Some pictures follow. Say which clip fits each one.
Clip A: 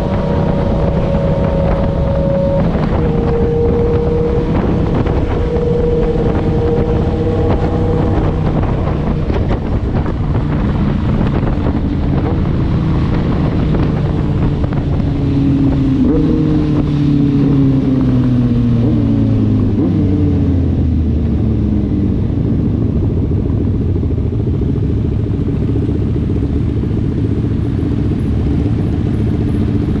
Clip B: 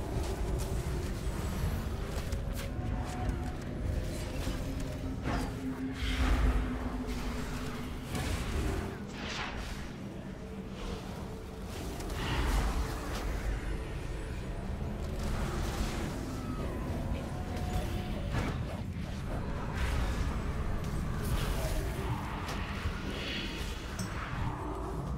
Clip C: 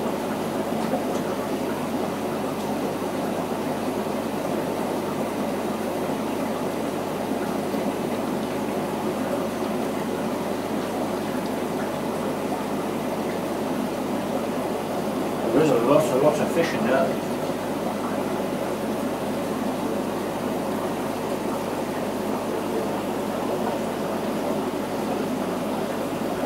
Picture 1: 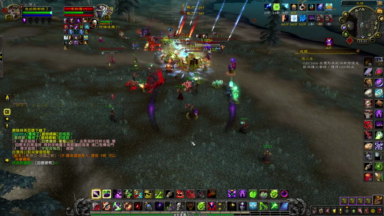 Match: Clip B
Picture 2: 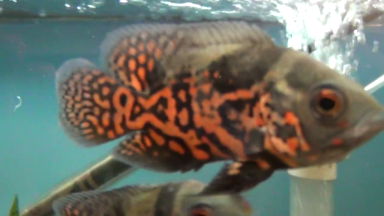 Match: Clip C